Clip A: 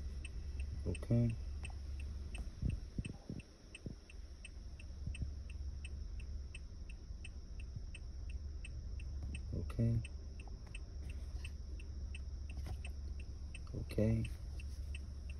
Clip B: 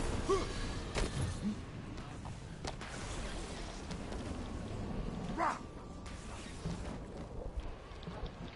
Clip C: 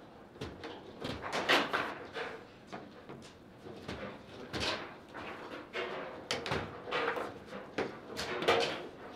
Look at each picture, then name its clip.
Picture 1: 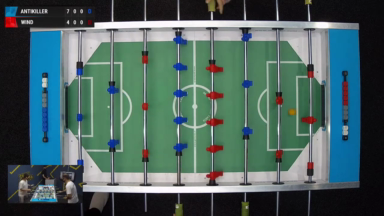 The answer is C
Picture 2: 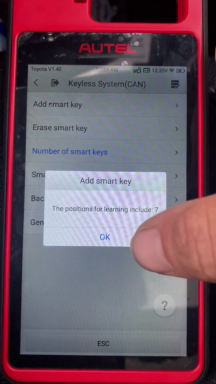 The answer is A